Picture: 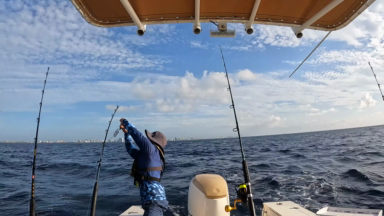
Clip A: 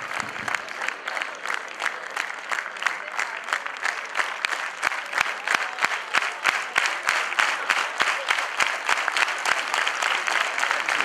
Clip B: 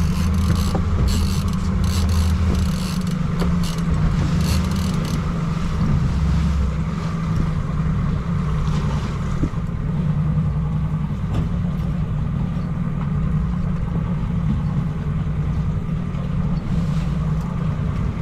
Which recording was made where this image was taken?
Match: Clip B